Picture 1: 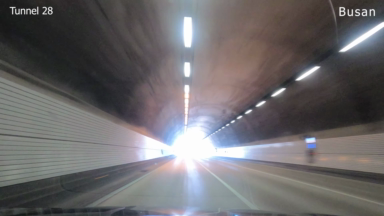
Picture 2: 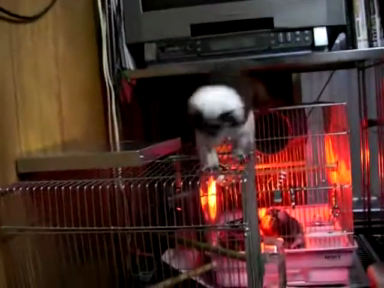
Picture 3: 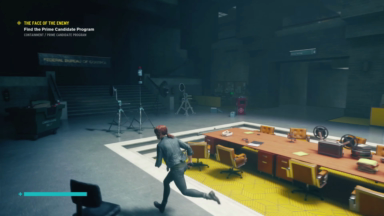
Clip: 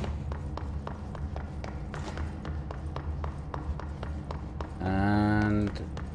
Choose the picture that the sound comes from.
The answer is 3